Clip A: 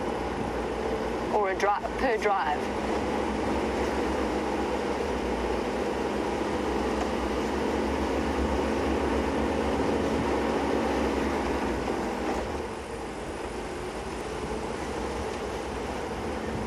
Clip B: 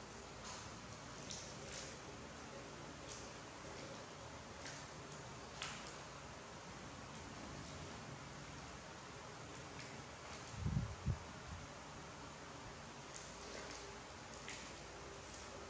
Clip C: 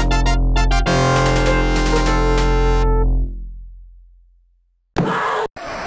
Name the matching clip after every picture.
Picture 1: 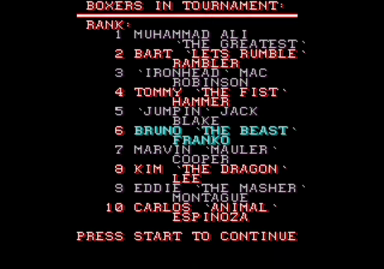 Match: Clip C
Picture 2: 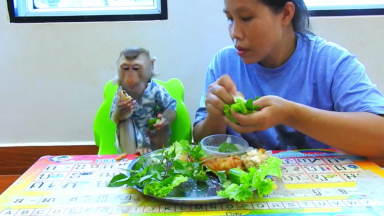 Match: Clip B